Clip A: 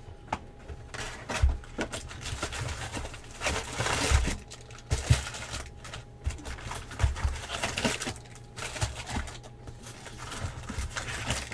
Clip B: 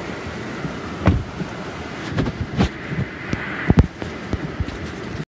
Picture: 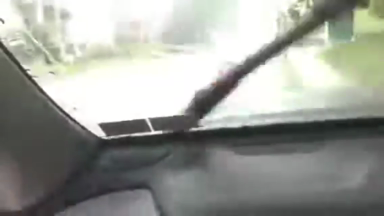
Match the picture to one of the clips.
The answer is B